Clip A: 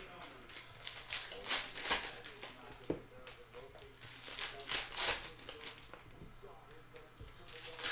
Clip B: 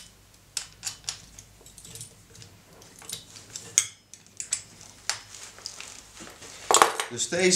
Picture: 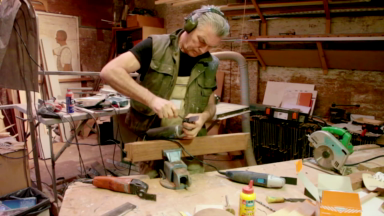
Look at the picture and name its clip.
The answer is B